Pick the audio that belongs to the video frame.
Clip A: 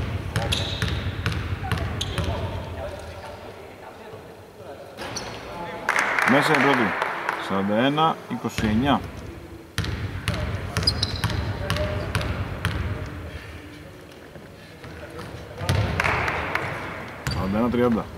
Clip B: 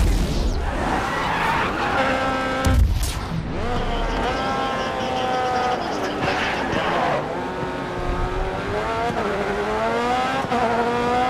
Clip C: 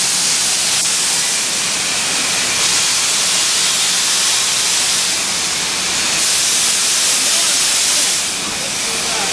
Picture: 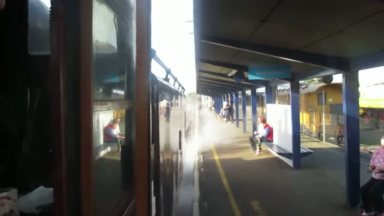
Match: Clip C